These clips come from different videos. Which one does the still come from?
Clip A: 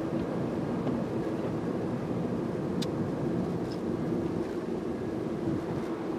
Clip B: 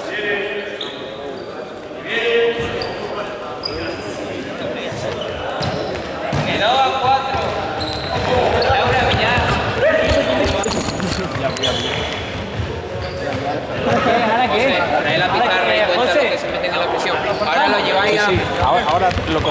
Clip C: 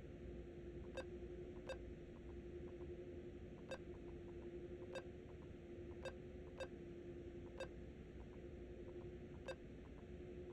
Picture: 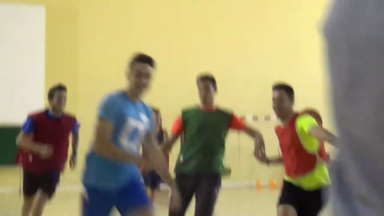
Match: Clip B